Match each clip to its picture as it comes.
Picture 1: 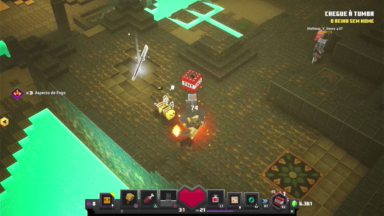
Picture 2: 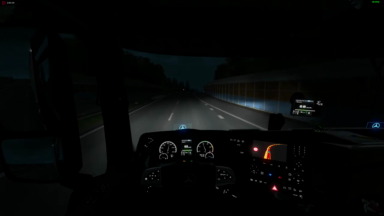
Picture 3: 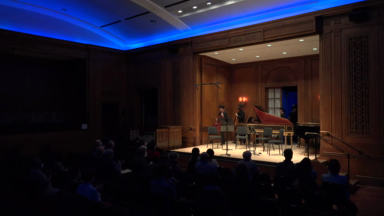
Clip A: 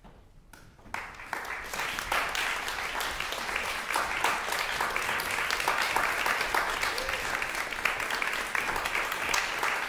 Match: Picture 3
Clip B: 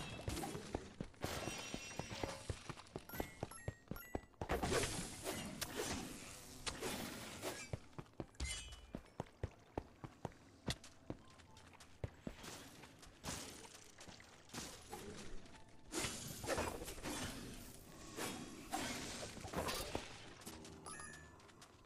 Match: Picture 1